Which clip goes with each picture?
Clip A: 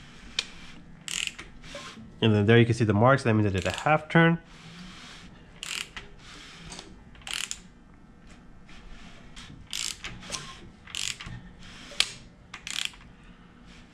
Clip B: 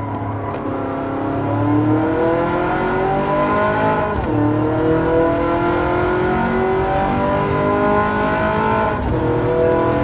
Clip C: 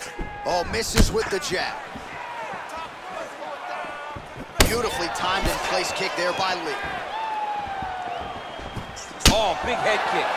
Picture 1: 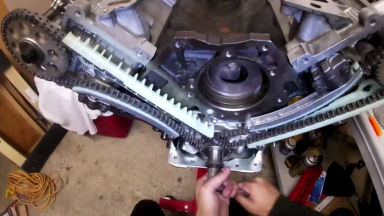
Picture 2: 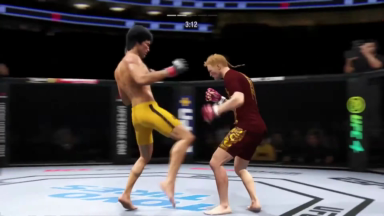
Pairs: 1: A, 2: C